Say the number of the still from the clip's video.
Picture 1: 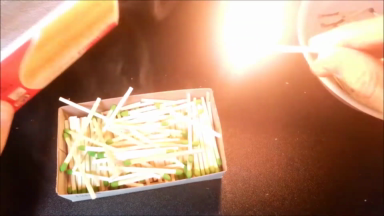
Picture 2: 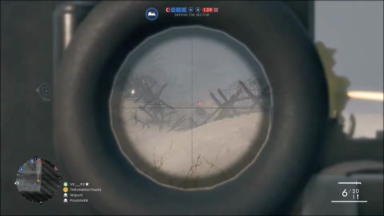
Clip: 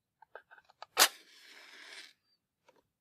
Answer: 1